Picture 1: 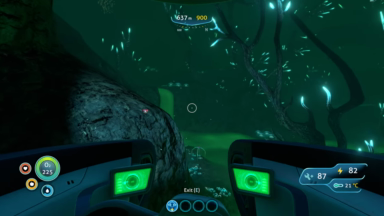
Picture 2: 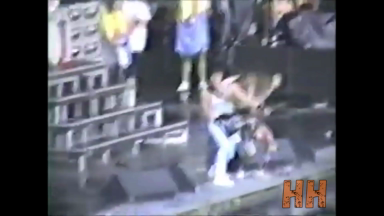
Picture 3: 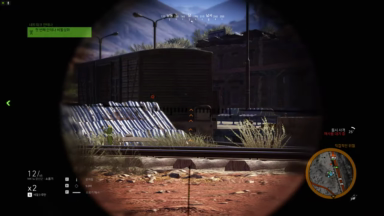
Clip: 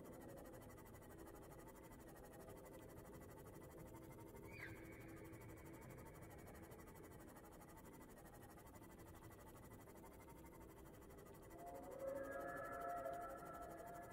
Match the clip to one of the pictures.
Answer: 1